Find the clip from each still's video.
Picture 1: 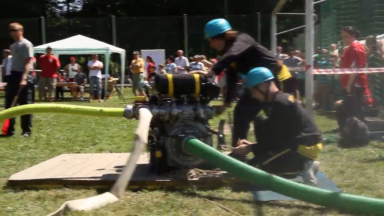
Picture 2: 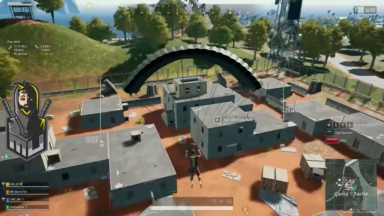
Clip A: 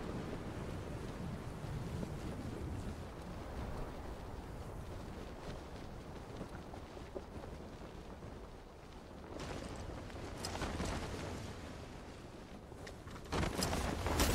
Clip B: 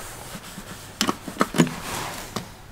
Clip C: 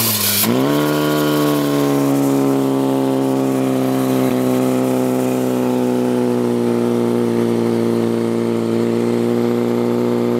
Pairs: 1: C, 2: A